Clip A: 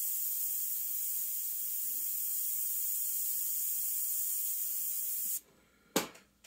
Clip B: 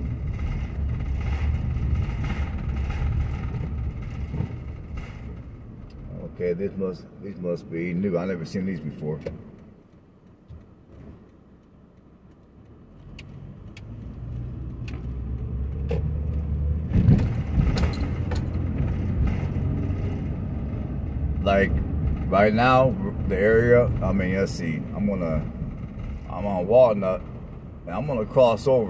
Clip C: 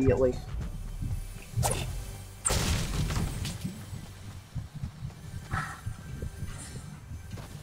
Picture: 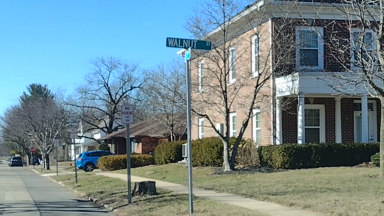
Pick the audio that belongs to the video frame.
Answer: B